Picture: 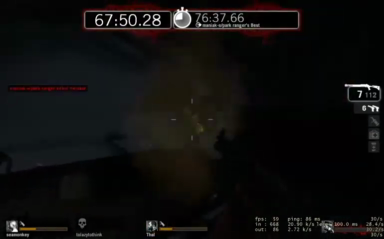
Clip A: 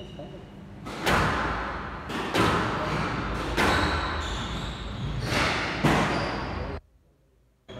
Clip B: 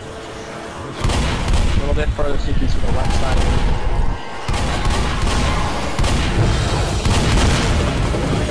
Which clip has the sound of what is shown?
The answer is B